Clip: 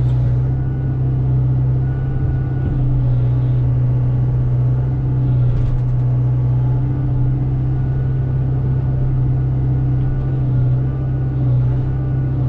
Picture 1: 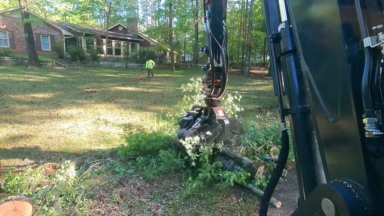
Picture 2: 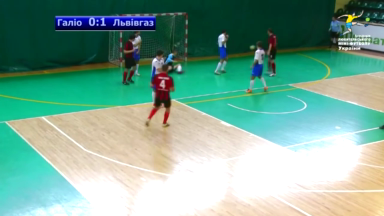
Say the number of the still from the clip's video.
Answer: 1